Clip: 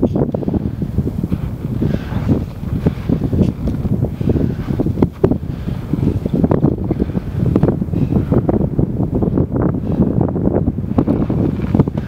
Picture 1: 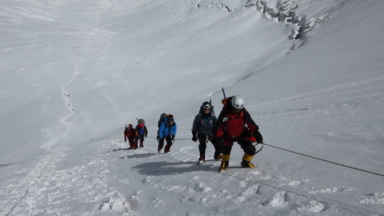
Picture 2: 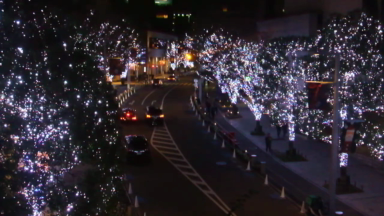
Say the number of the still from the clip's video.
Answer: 1